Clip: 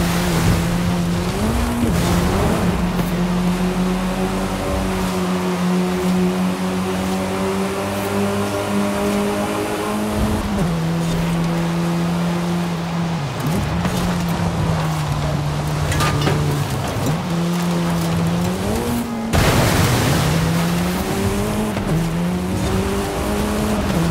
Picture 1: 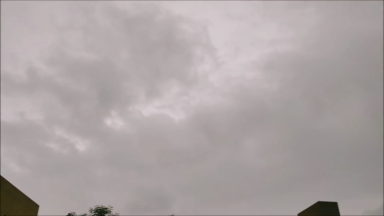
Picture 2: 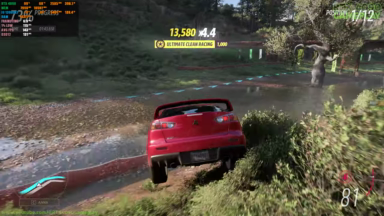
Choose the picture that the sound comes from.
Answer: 2